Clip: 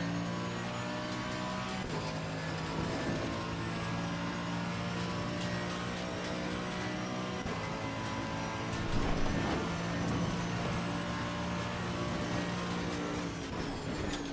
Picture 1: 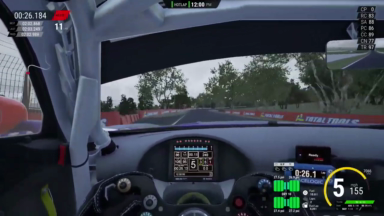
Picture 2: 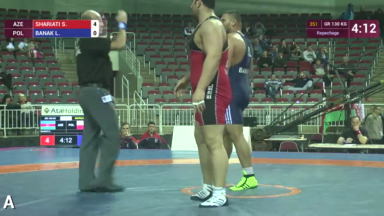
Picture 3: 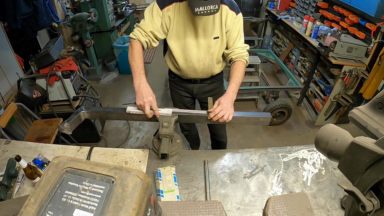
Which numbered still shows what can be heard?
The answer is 1